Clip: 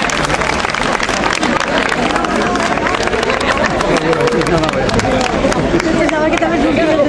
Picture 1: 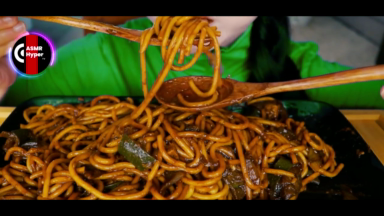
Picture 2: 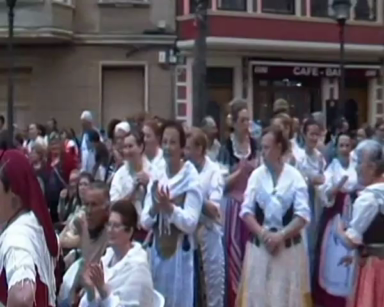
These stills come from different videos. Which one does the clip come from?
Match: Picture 2